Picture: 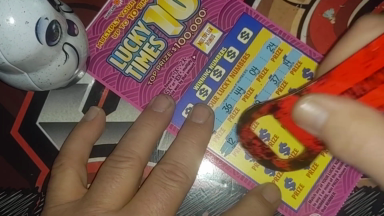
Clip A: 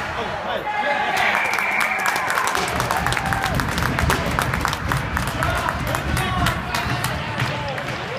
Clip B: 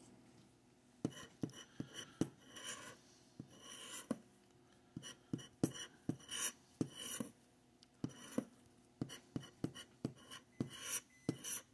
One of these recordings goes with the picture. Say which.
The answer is B